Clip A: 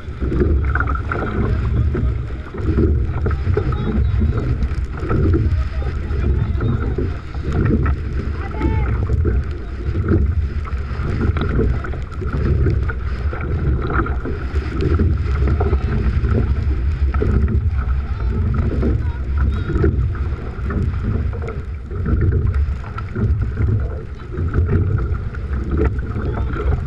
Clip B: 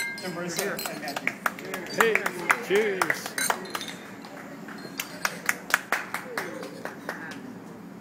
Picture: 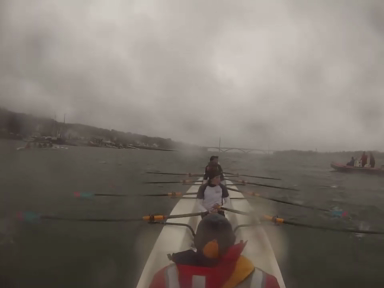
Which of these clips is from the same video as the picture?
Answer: A